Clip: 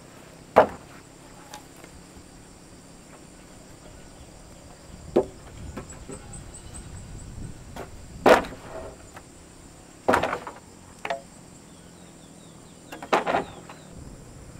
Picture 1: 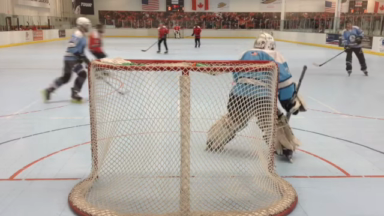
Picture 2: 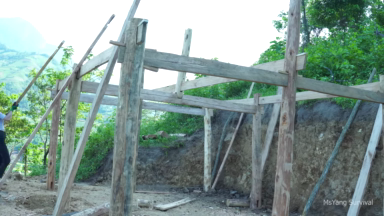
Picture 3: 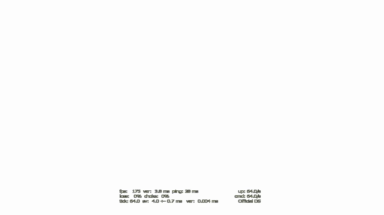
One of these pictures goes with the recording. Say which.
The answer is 2